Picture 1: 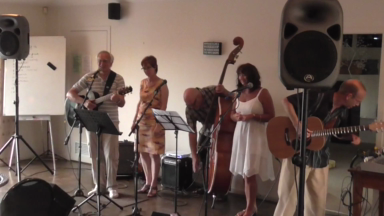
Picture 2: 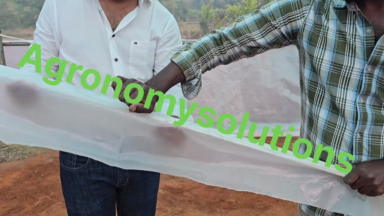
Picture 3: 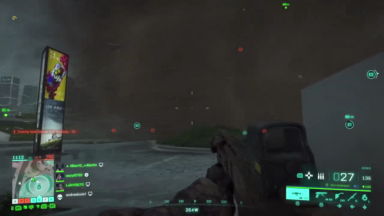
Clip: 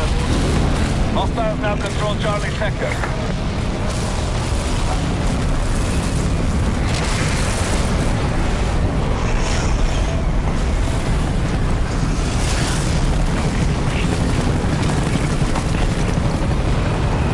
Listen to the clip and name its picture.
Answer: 3